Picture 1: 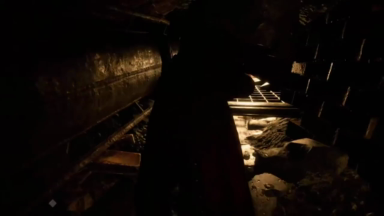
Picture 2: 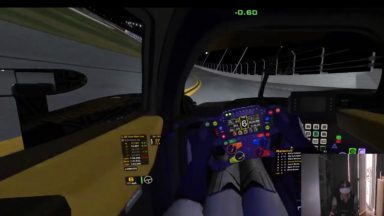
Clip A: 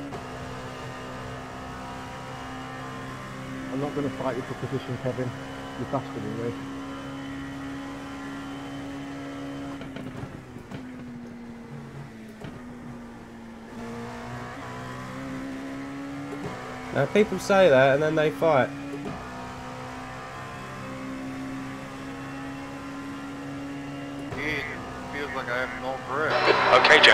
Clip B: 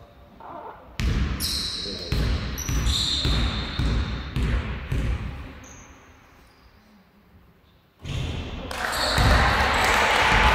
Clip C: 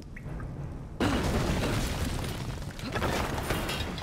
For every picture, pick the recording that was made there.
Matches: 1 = C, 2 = A